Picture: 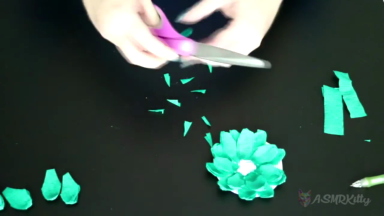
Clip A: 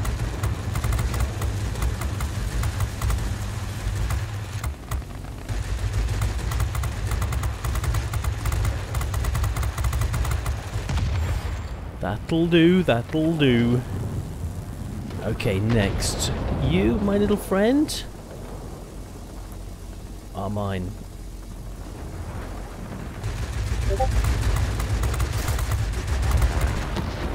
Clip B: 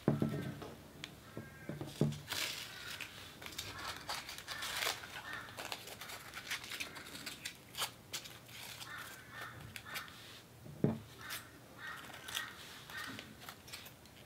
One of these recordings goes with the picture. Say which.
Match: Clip B